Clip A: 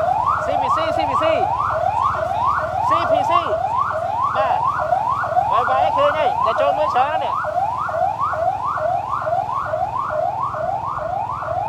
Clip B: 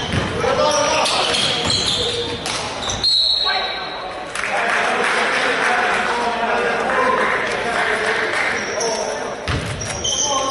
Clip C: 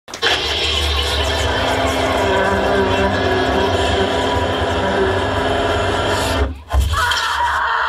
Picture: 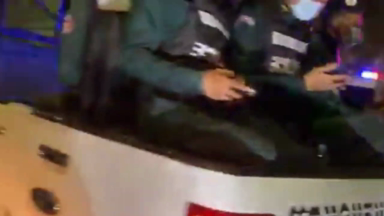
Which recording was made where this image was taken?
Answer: A